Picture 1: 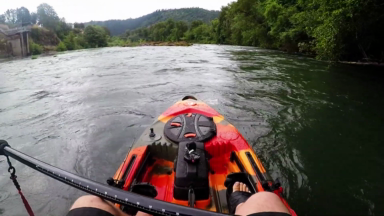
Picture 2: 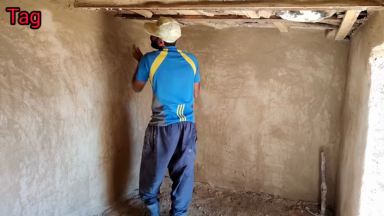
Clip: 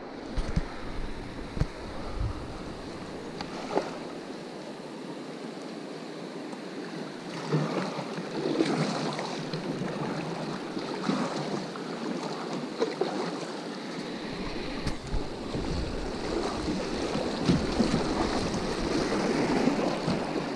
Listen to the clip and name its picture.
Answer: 1